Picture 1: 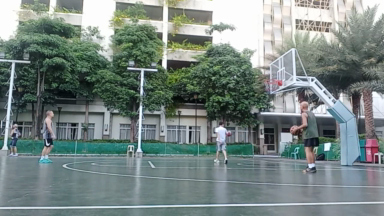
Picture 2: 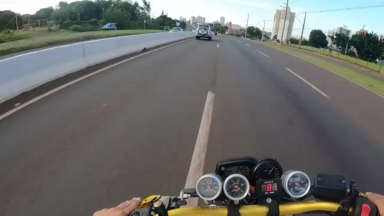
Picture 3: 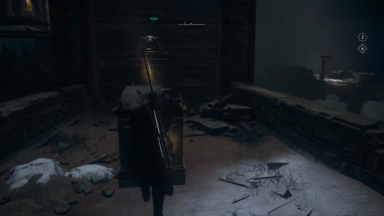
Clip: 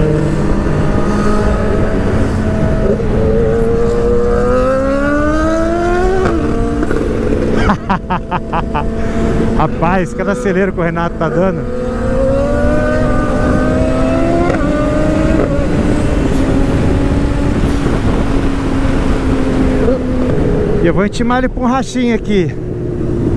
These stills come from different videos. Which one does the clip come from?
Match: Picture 2